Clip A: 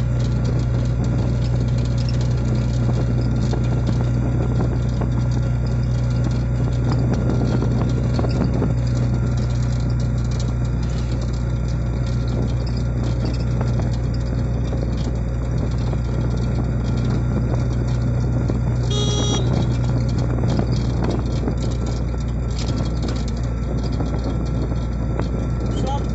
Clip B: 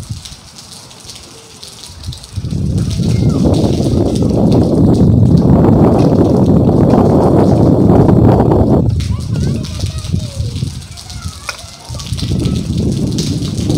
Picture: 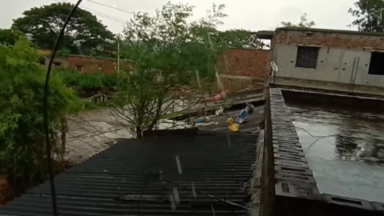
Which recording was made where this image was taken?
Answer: B